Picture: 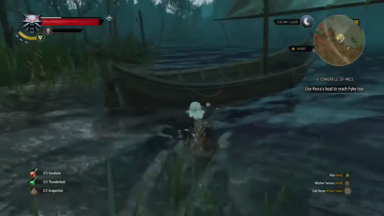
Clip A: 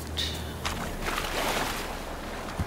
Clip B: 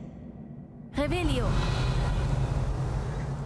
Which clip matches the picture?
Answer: A